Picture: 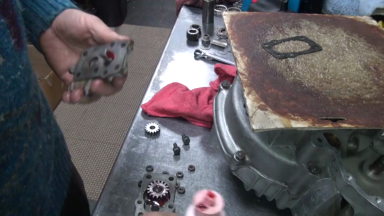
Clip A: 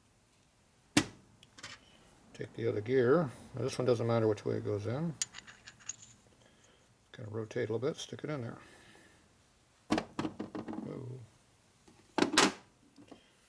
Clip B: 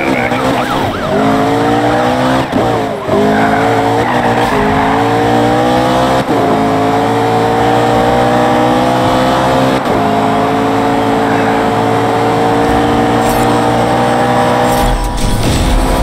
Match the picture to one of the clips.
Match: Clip A